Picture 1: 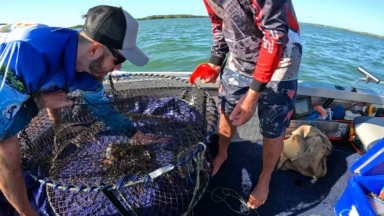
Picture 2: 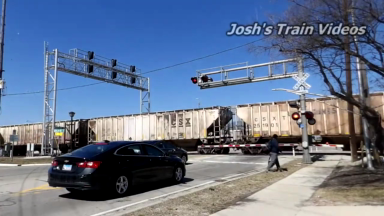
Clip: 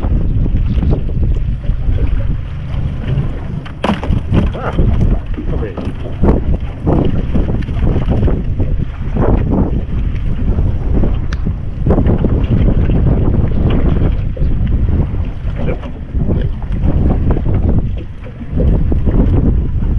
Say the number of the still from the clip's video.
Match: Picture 1